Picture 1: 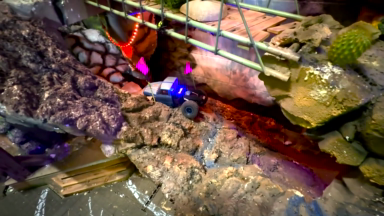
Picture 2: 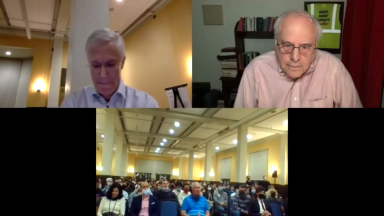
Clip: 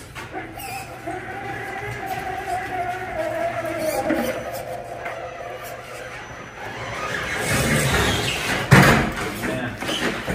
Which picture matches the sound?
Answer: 1